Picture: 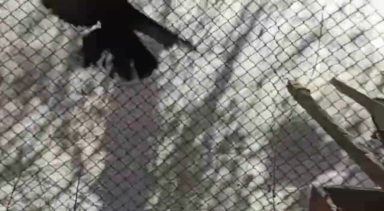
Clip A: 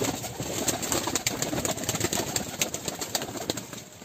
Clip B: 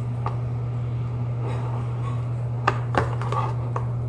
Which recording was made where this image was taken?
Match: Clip A